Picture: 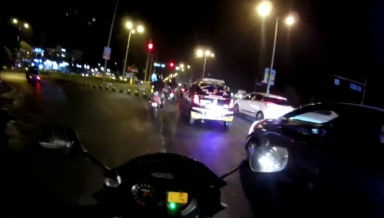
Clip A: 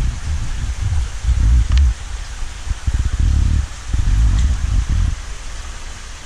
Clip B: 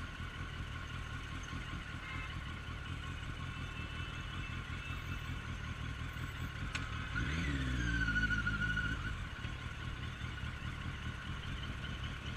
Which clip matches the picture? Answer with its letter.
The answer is B